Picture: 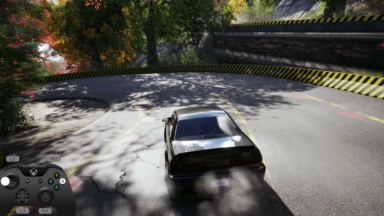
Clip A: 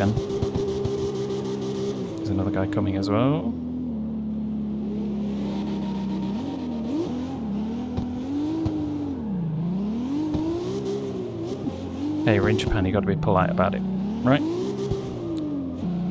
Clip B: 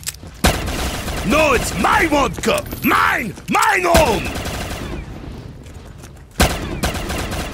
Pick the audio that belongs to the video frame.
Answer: A